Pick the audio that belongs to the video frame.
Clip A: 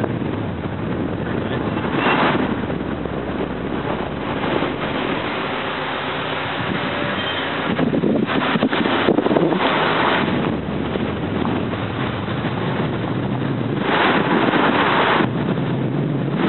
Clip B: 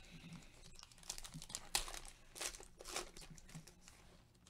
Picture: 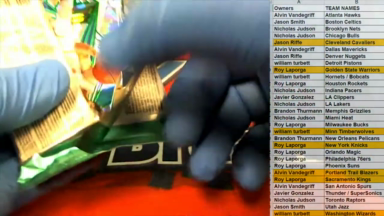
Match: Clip B